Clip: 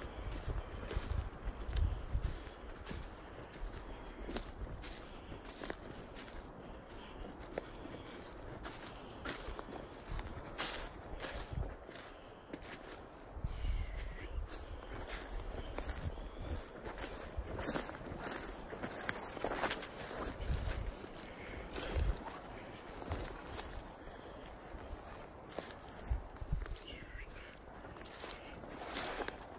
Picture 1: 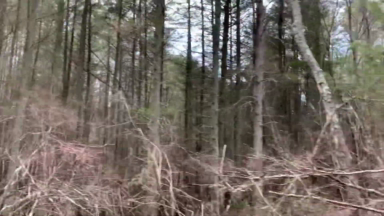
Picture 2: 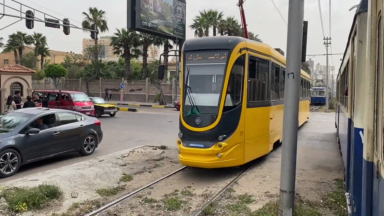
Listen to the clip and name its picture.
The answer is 1